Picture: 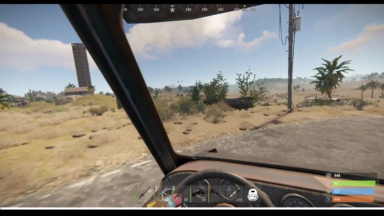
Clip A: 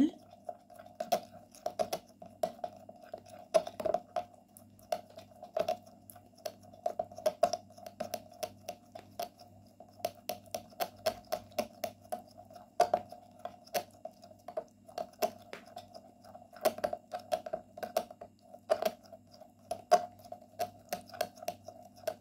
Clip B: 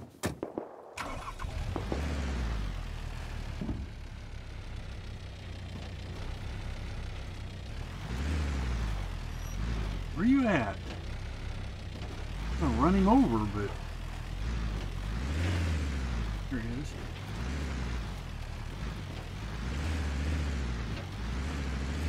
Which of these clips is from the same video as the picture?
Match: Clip B